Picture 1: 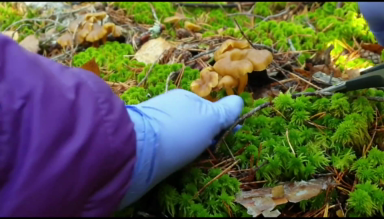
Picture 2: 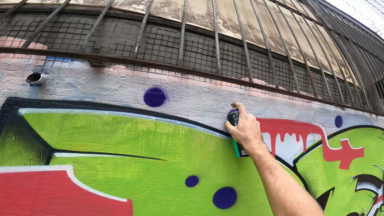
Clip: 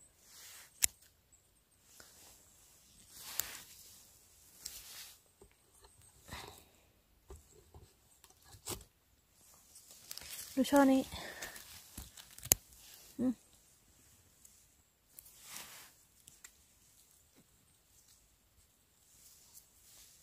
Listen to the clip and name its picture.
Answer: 1